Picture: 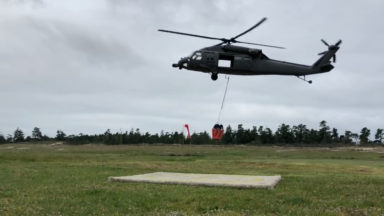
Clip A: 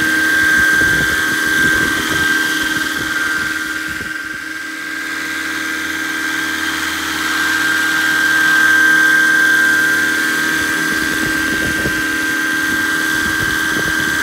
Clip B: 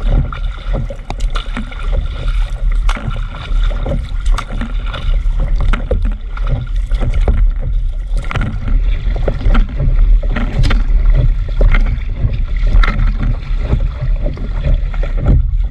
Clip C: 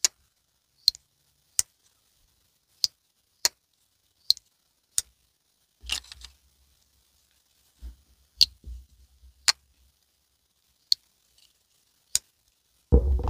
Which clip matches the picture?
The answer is A